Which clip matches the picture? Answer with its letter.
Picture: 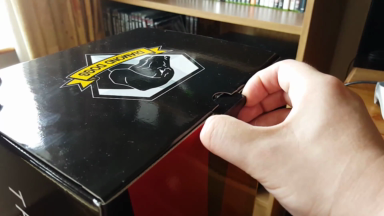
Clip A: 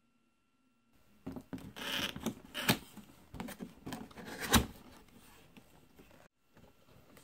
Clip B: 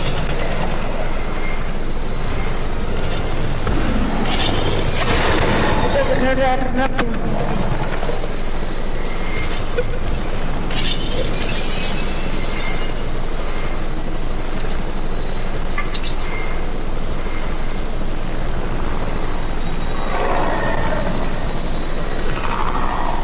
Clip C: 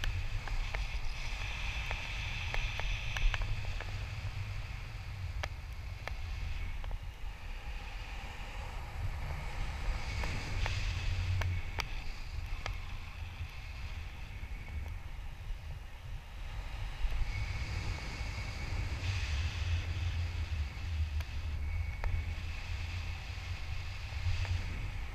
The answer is A